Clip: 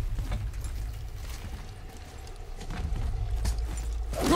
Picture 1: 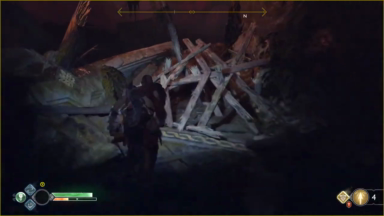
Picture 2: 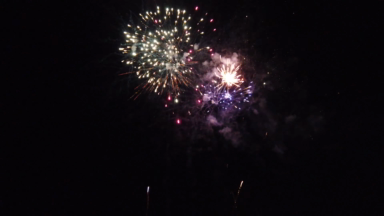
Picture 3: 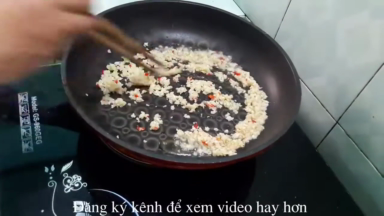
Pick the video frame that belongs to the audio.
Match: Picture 1